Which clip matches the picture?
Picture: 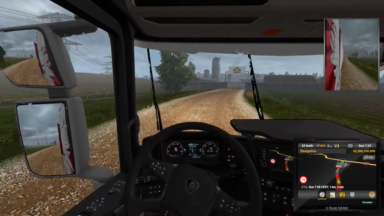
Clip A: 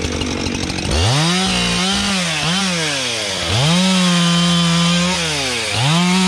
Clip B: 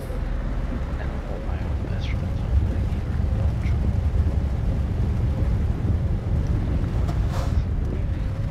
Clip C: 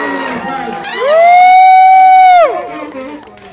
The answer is B